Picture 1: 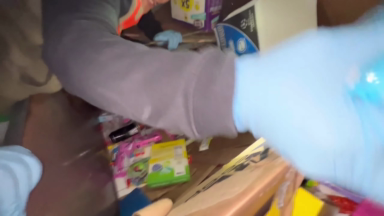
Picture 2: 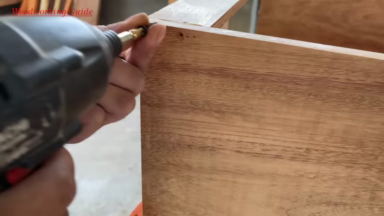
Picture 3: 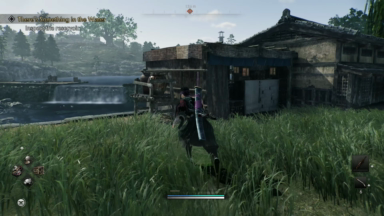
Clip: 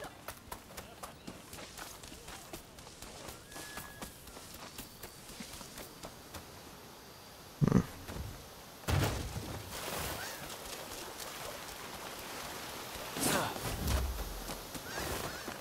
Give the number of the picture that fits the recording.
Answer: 3